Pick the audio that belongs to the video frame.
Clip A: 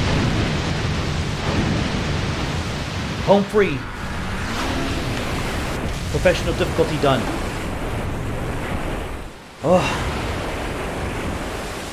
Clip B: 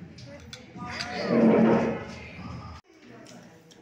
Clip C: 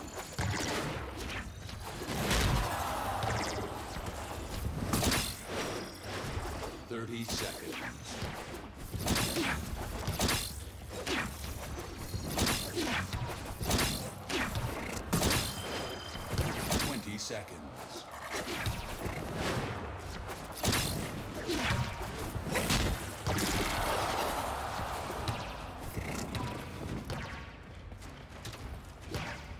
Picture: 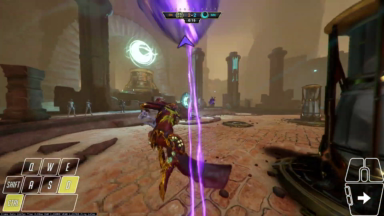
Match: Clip C